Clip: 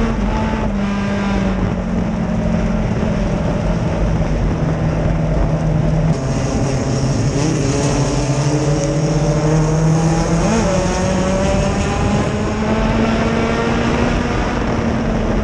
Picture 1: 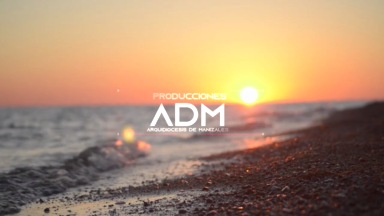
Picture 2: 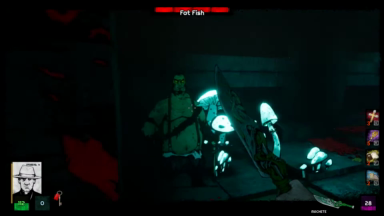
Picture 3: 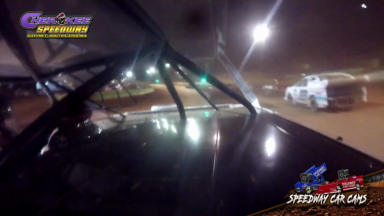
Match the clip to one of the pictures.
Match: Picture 3